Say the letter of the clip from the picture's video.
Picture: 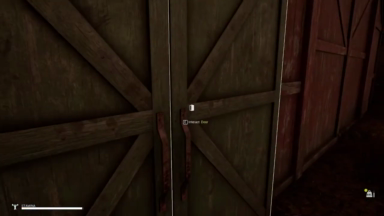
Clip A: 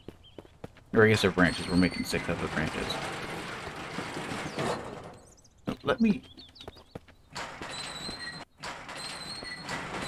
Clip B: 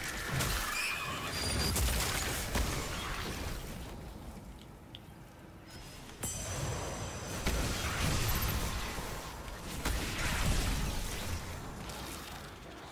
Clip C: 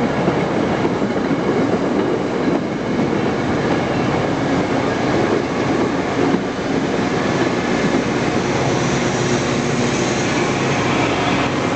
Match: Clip A